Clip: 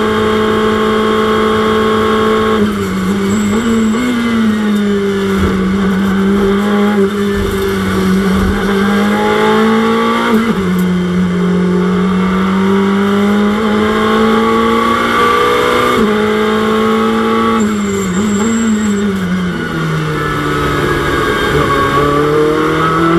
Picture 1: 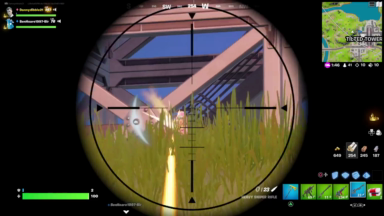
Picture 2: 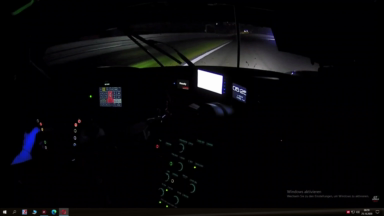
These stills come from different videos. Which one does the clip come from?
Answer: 2